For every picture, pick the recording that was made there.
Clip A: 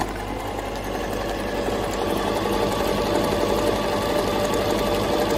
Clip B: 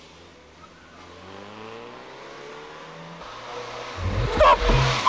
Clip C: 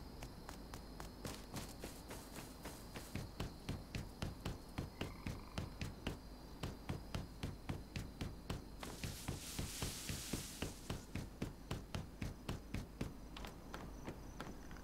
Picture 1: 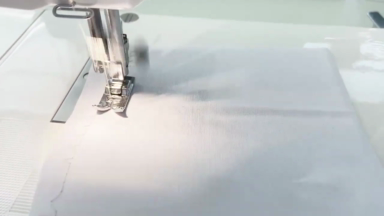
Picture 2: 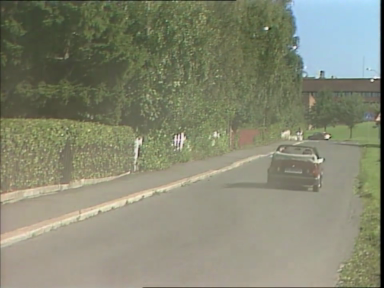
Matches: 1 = A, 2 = B